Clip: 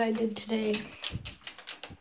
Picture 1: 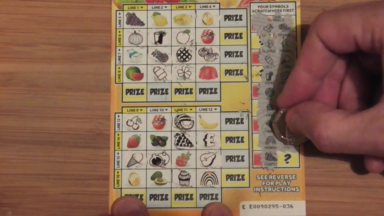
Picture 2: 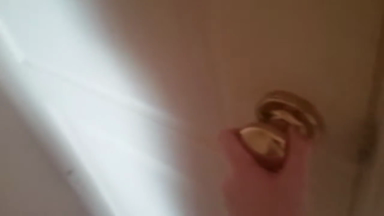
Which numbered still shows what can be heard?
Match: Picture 2